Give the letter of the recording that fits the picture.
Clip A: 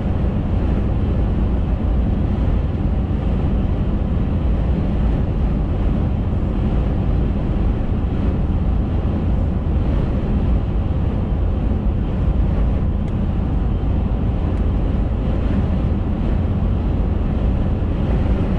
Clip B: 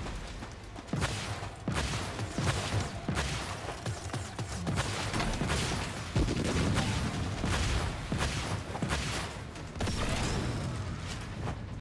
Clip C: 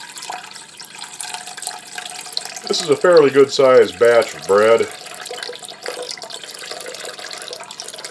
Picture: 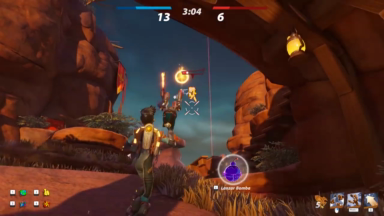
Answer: B